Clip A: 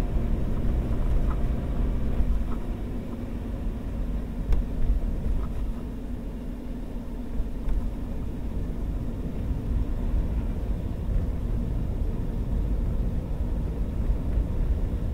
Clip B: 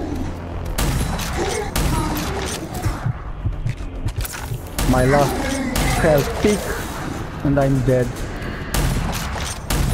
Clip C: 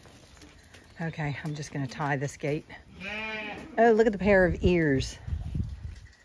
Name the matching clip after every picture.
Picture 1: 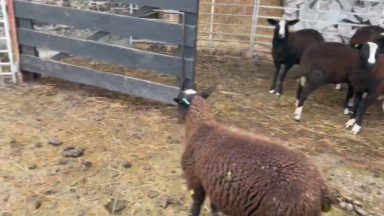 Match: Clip C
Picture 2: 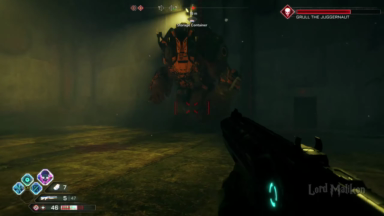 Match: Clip B